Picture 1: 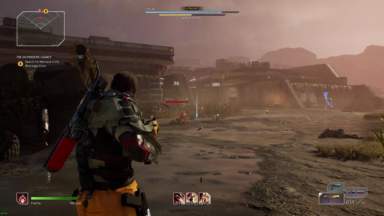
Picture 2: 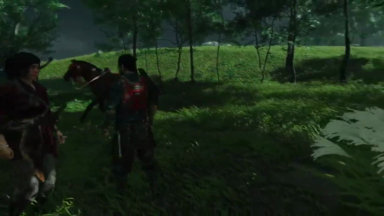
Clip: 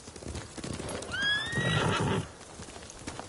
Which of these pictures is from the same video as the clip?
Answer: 2